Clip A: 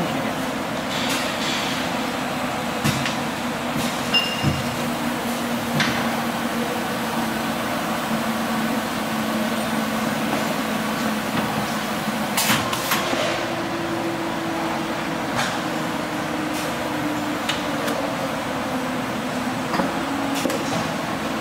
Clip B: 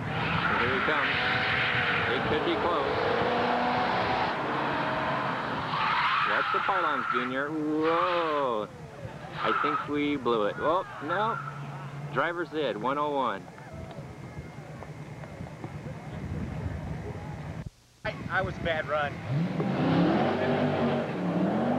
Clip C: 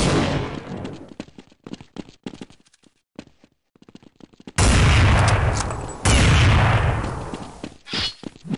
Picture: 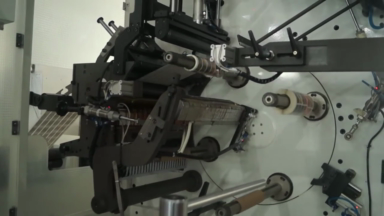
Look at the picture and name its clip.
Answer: A